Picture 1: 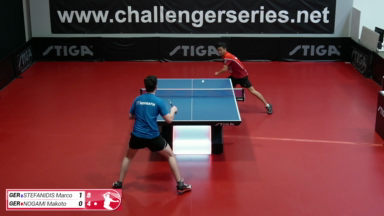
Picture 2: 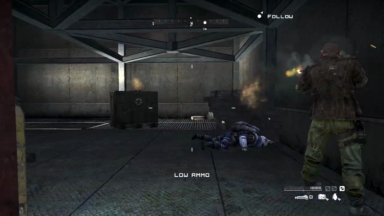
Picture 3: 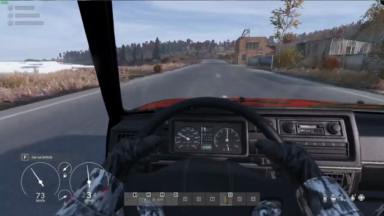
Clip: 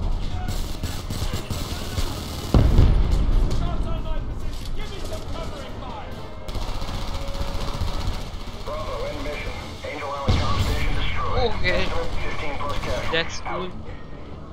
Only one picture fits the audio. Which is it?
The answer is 2